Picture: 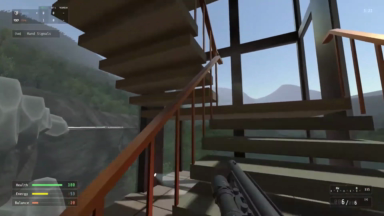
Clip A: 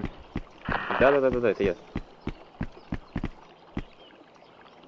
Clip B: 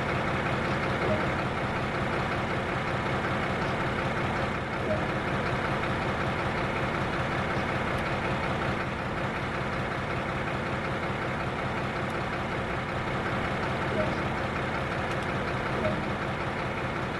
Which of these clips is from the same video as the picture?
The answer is A